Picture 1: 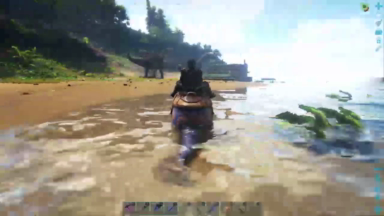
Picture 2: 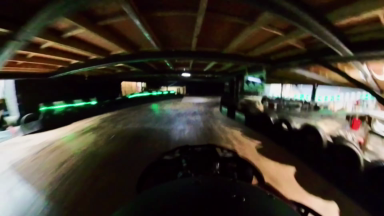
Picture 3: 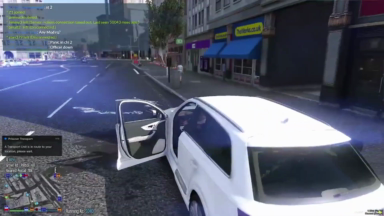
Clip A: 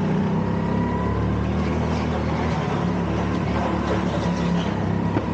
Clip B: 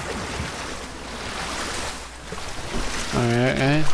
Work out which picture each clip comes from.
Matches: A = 2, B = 1